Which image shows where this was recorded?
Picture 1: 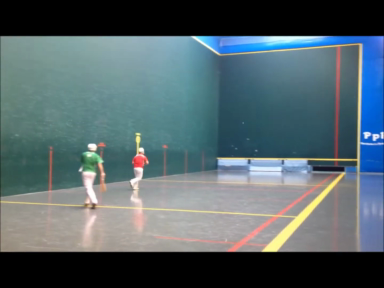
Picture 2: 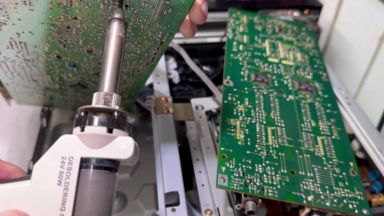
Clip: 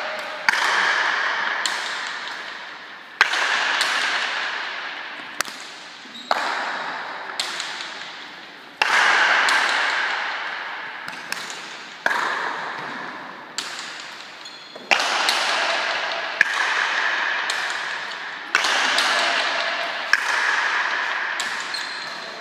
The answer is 1